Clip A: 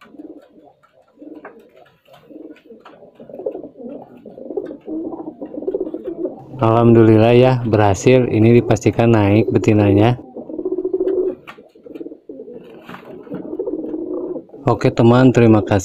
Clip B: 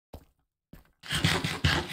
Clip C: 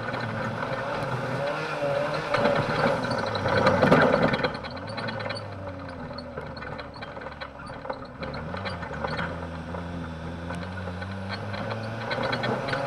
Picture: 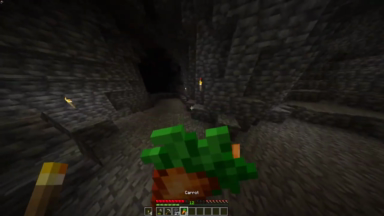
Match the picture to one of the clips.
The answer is B